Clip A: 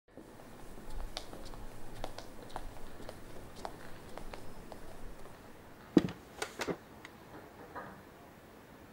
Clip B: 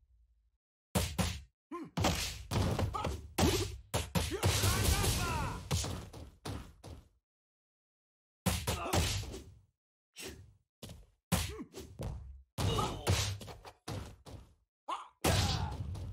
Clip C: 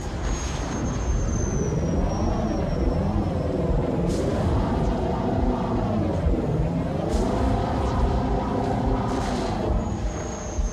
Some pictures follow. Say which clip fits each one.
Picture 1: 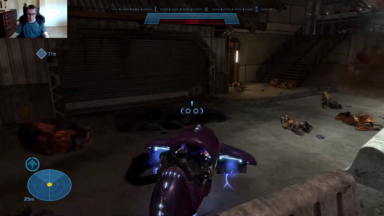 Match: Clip C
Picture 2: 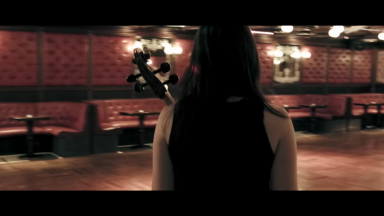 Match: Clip A